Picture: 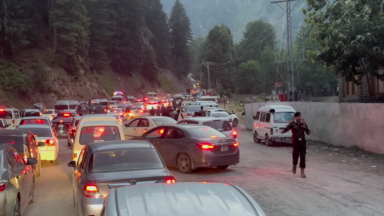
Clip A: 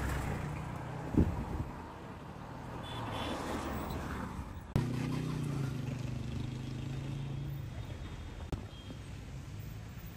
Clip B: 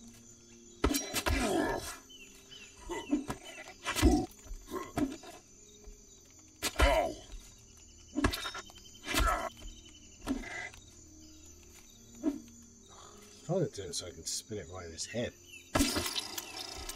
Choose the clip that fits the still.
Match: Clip A